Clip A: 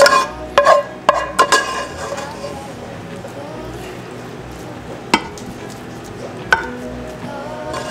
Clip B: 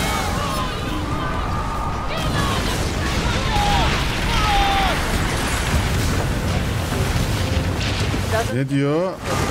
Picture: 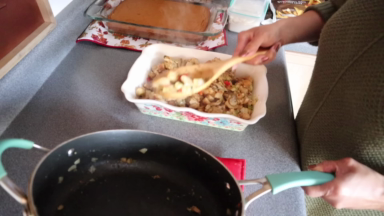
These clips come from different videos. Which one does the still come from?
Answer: A